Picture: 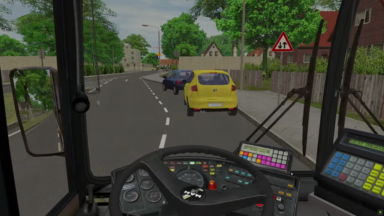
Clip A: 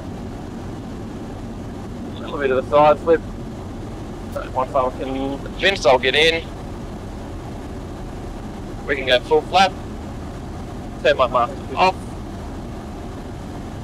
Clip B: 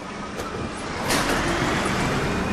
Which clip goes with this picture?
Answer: B